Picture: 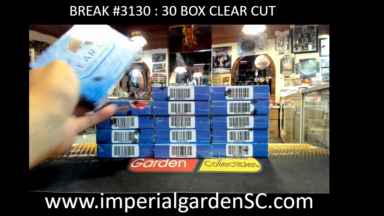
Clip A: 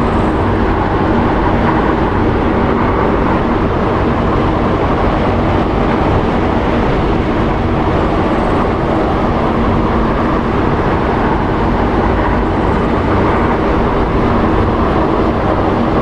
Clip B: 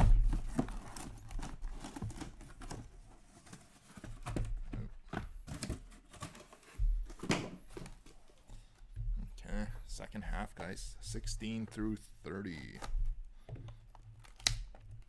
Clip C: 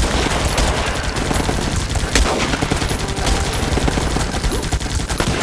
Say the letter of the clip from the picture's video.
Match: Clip B